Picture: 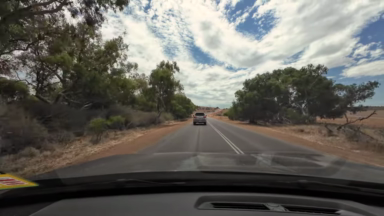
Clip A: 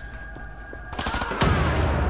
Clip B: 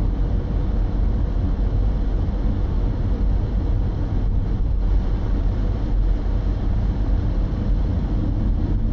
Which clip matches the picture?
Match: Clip B